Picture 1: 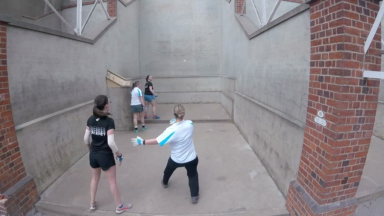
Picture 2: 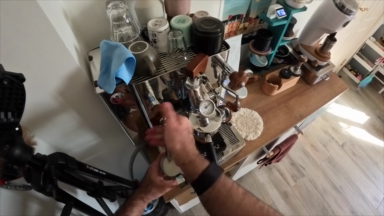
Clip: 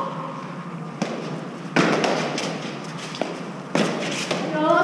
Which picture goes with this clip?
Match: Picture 1